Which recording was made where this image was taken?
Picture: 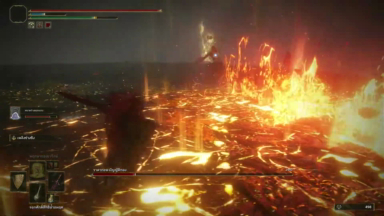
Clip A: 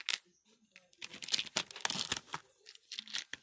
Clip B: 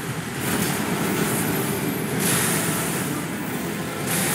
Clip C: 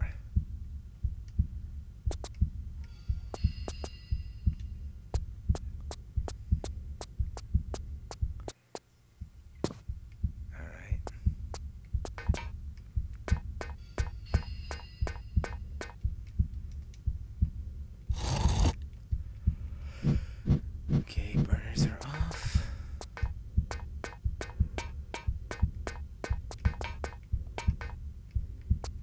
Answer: B